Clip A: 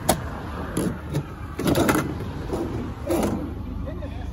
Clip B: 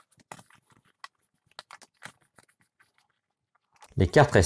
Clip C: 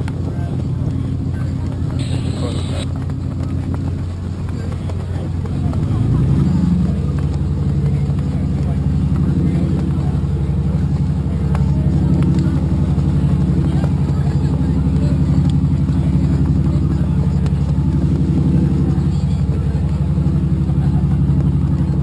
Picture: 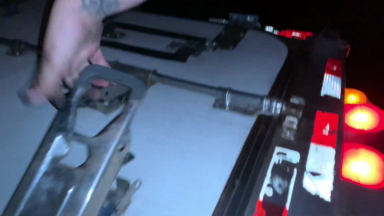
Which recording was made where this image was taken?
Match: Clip A